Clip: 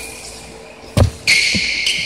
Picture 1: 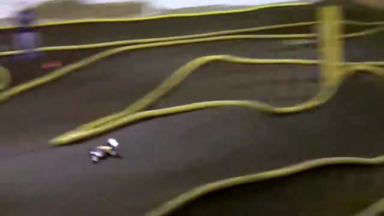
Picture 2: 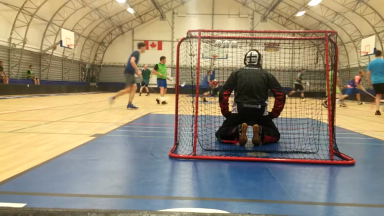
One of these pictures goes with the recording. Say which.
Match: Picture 2